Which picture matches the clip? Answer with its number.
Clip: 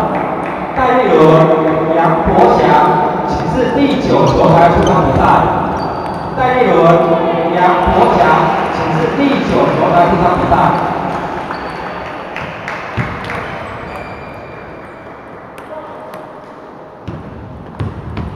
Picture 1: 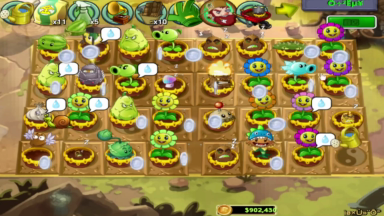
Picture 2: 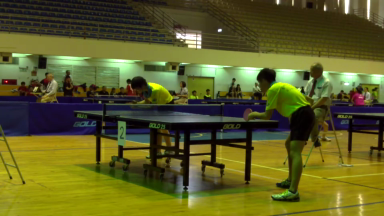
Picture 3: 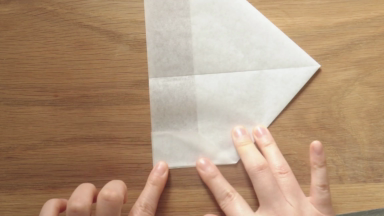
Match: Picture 2